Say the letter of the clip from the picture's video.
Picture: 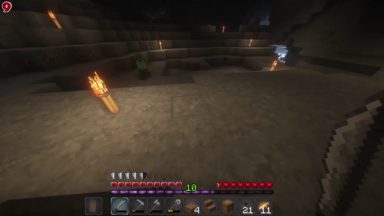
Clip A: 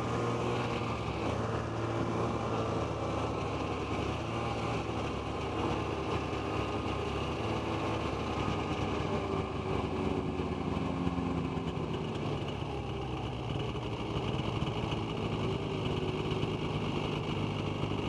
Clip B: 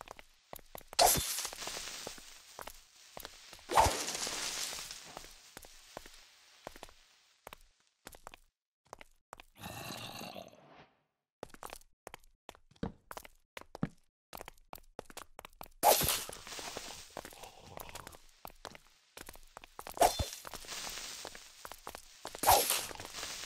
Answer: B